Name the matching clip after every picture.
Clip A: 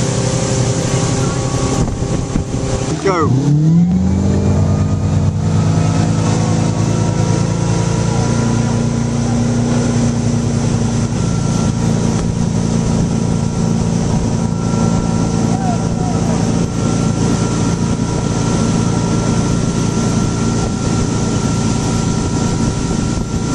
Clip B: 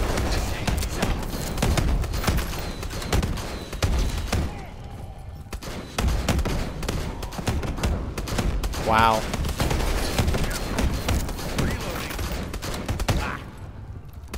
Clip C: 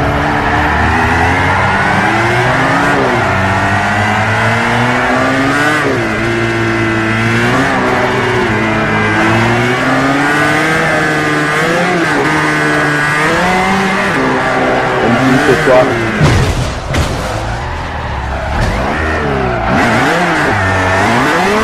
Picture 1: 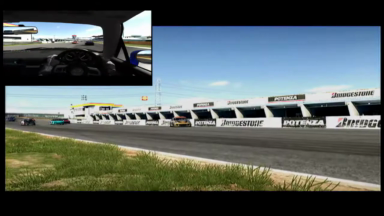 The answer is C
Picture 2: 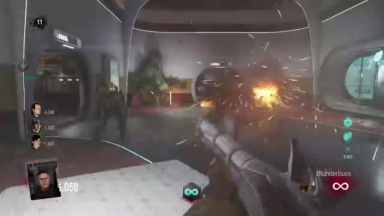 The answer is B